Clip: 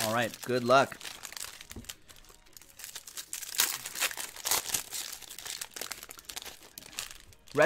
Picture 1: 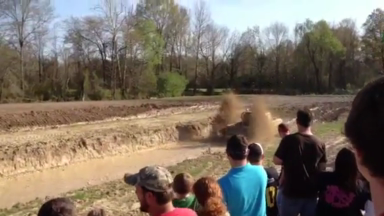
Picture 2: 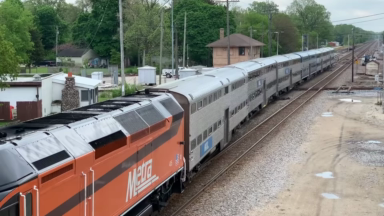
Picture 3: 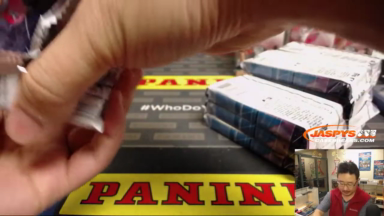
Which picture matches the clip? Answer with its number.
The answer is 3